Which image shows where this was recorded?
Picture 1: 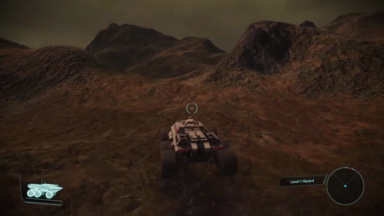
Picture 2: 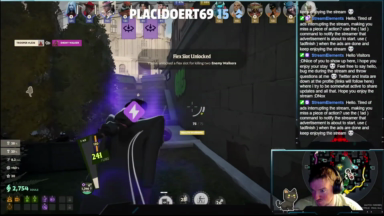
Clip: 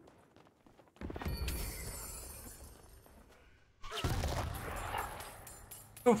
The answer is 2